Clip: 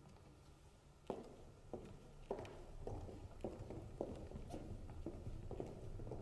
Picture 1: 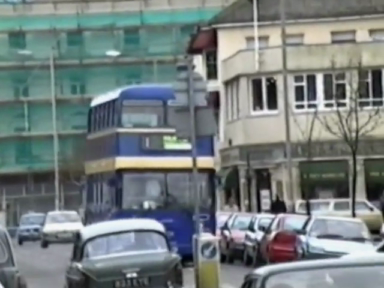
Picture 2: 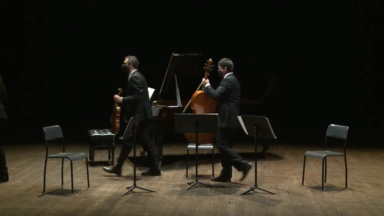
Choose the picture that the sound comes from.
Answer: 2